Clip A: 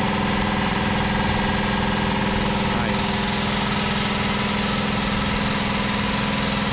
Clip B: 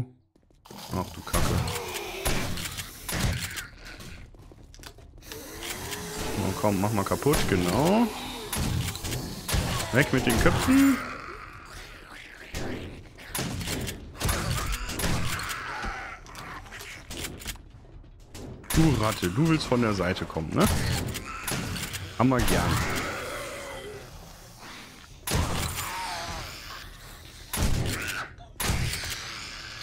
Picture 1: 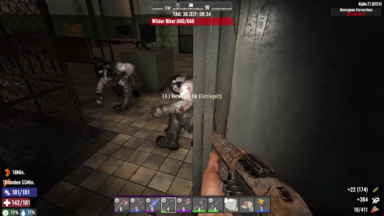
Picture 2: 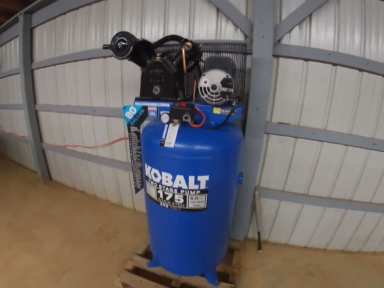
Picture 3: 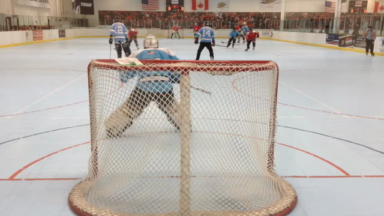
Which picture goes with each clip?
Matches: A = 2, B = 1